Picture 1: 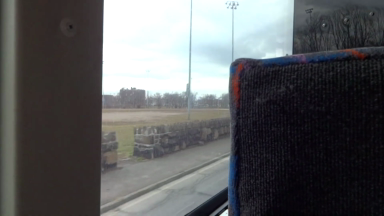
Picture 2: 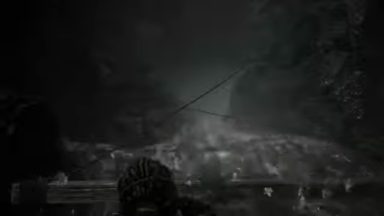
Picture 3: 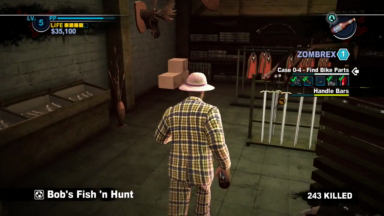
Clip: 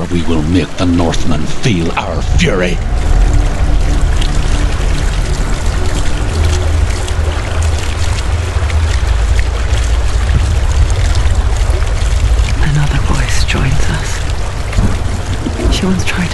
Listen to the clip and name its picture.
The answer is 2